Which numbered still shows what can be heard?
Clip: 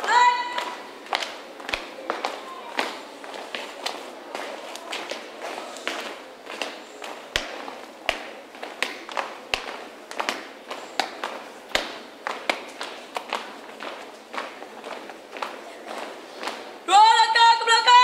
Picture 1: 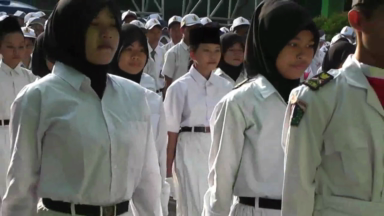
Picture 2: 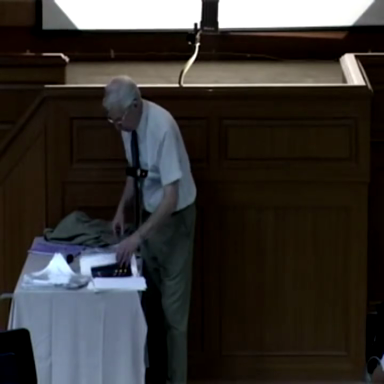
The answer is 1